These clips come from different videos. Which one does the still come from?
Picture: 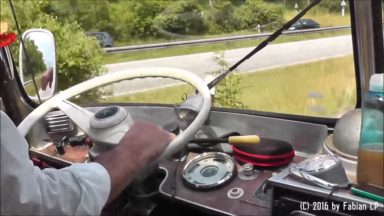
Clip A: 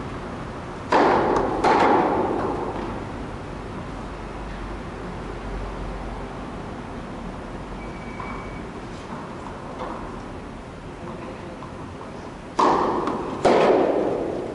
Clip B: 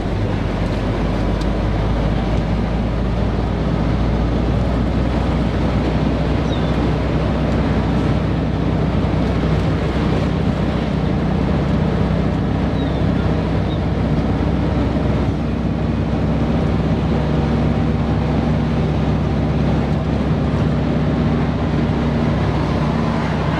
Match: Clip B